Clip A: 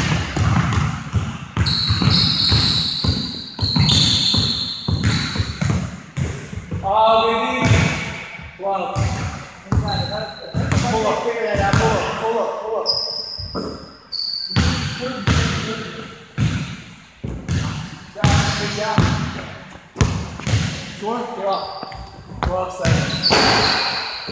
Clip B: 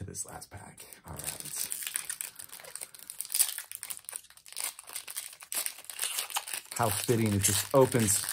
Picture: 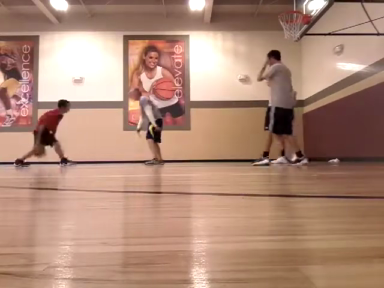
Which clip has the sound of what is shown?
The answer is A